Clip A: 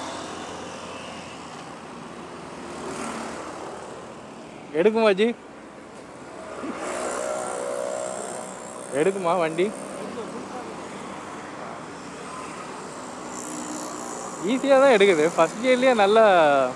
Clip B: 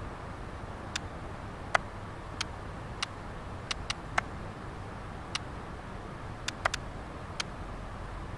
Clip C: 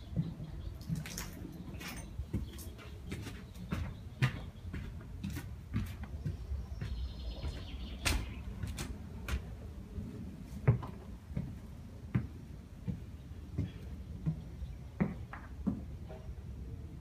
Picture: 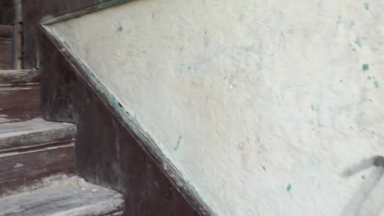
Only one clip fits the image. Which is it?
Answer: C